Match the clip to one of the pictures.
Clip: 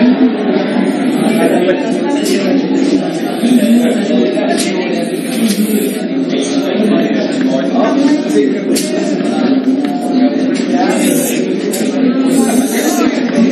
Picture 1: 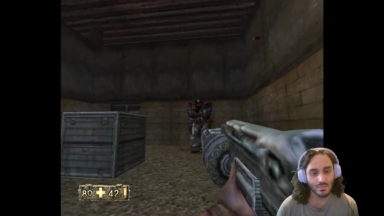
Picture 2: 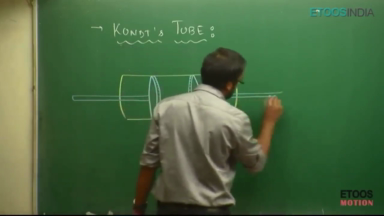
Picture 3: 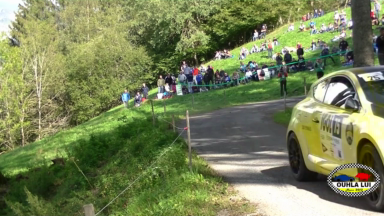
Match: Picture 2